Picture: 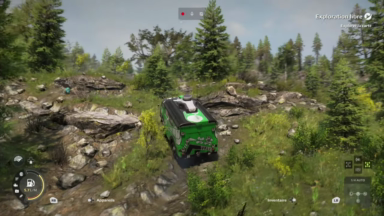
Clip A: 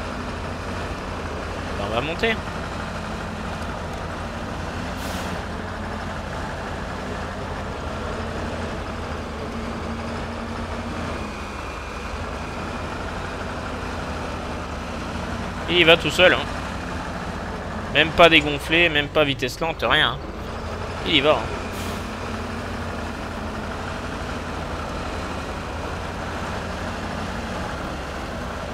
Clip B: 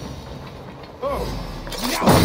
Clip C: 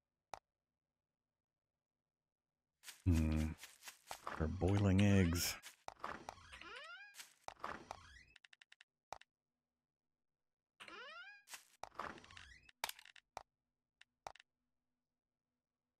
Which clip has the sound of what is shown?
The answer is A